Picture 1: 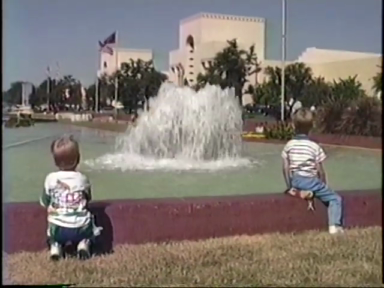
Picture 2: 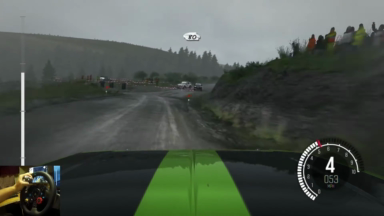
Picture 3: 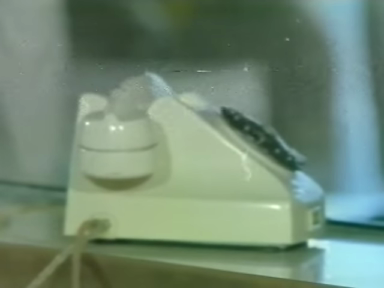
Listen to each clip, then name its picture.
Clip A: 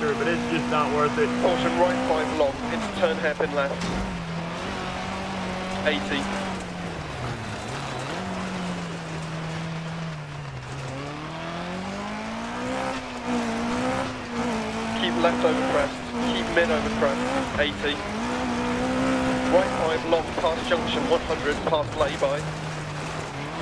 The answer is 2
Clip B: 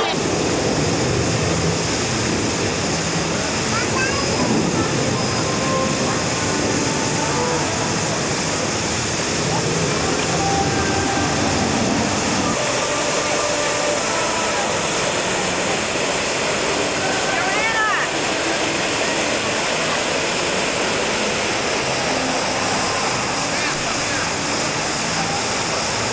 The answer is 1